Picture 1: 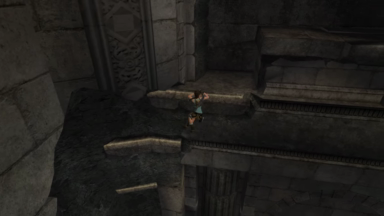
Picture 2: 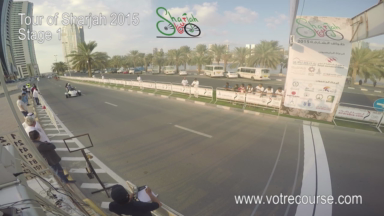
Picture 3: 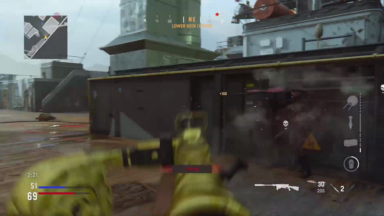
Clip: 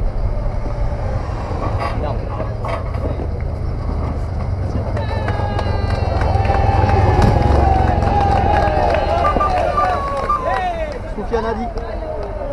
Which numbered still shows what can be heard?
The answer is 2